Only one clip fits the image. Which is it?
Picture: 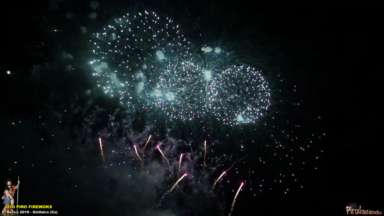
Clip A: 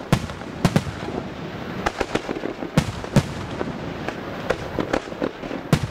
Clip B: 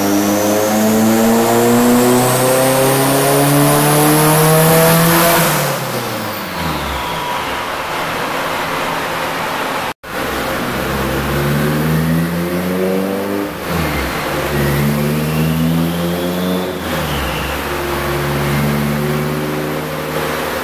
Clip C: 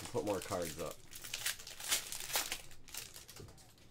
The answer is A